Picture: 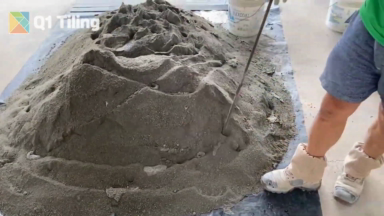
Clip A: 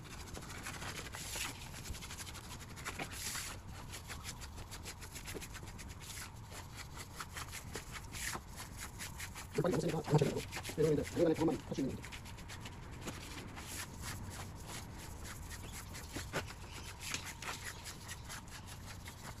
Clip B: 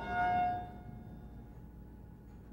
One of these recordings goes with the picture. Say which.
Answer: A